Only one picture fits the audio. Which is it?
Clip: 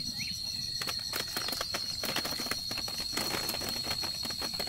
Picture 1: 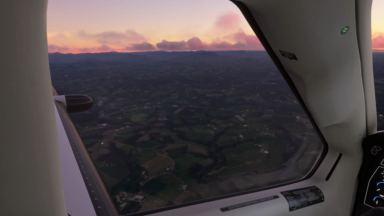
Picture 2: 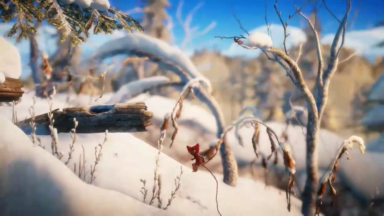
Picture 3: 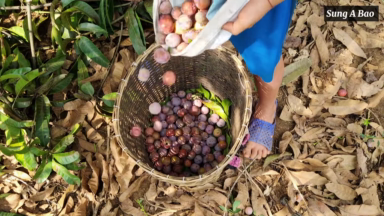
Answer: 3